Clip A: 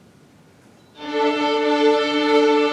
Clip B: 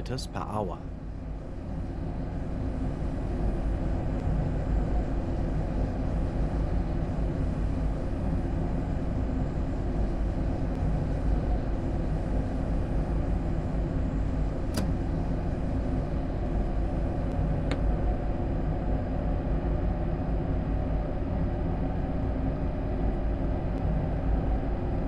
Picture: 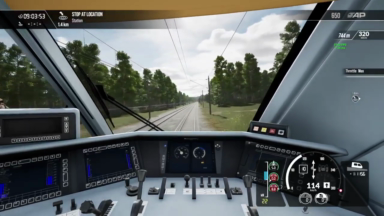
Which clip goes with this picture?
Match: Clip B